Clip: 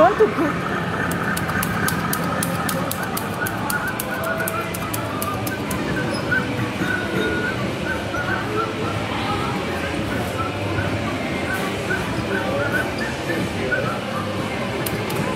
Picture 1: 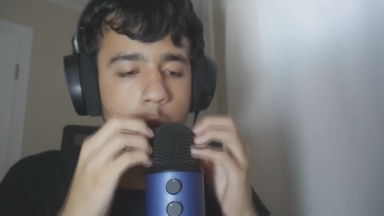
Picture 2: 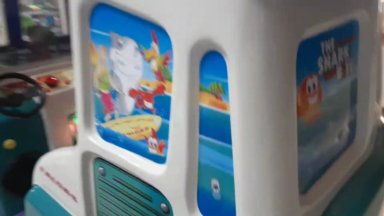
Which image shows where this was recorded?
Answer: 2